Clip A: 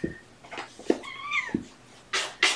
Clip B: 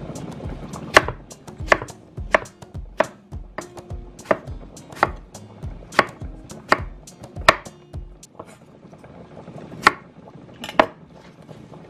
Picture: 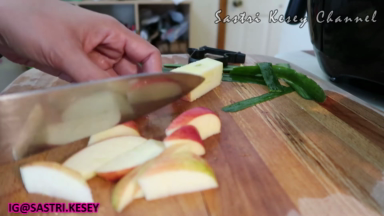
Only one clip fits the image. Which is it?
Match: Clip B